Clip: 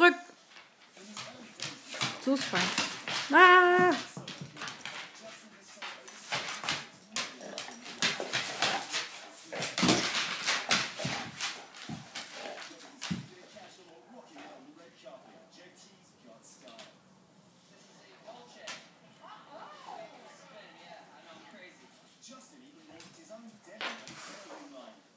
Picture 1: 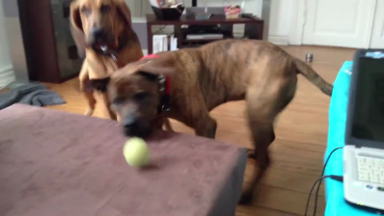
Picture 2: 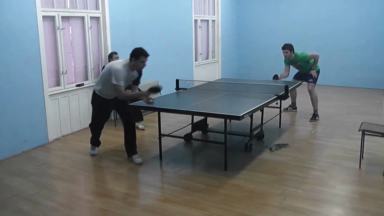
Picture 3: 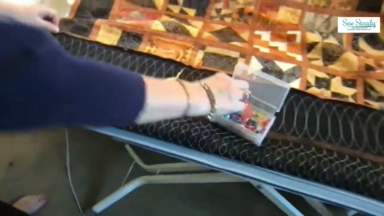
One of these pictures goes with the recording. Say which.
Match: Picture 1